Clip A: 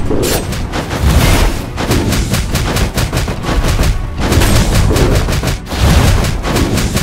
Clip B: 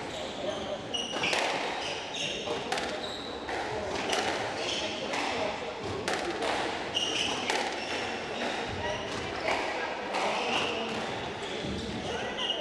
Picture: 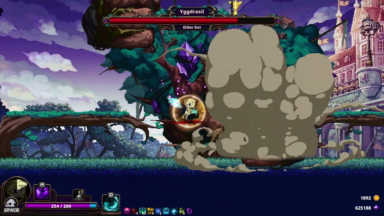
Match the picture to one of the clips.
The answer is A